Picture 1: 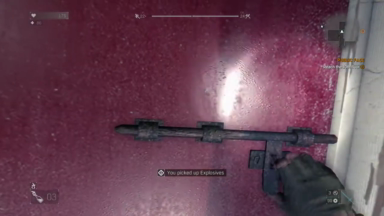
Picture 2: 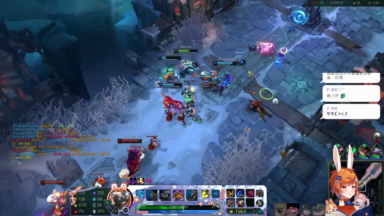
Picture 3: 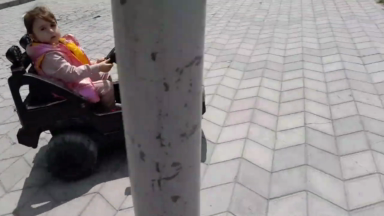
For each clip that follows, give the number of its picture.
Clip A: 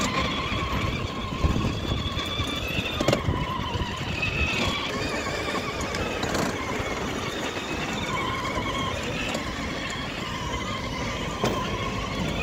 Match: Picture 3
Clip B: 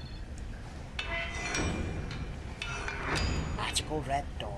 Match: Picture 1